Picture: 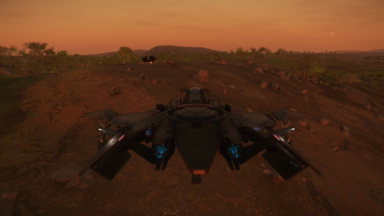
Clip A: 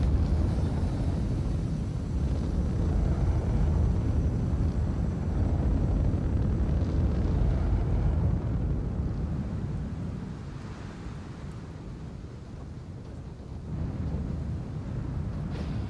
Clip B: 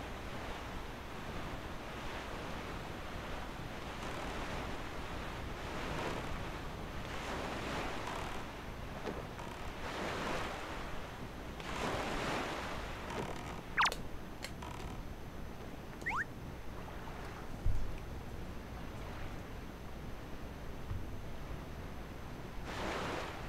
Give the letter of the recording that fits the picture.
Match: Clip A